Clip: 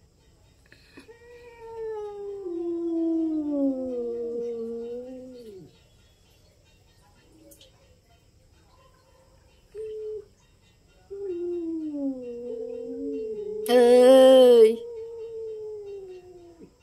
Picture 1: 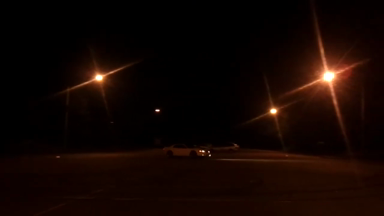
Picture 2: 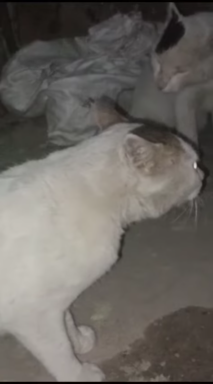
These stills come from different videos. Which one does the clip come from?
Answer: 2